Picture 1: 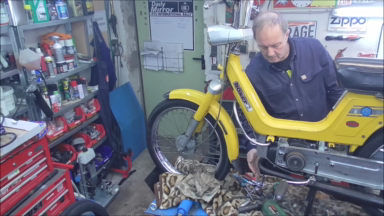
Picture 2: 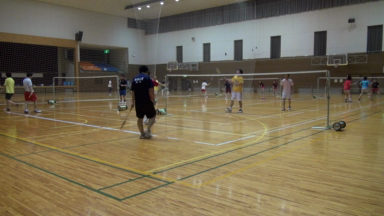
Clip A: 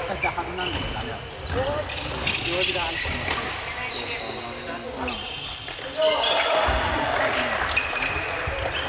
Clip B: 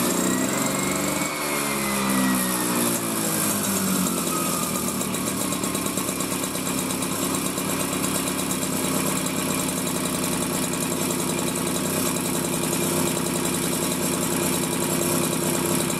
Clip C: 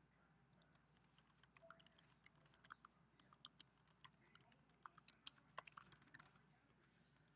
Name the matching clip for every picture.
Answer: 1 B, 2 A